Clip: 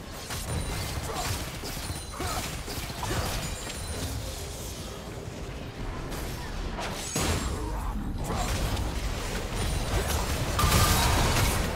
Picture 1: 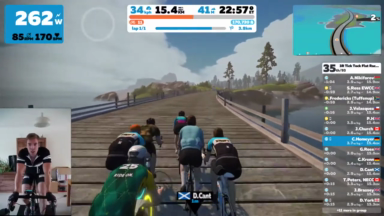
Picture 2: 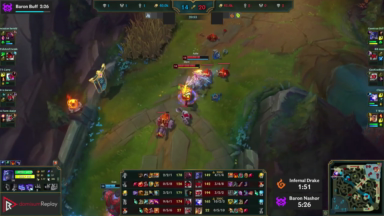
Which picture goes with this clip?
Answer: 2